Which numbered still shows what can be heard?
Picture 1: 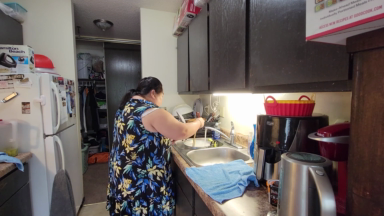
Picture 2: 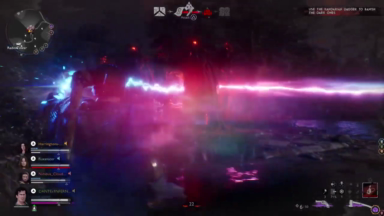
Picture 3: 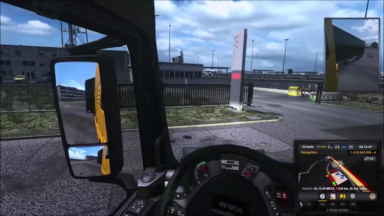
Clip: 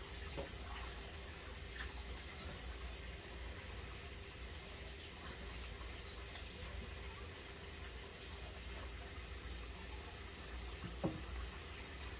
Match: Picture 1